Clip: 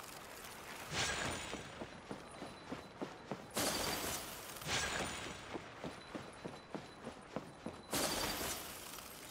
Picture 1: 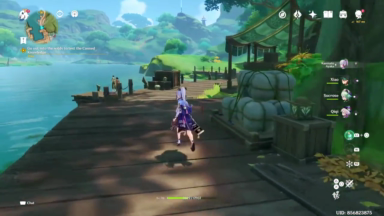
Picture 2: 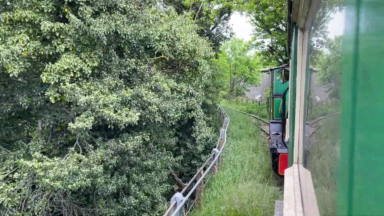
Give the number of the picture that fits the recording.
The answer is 1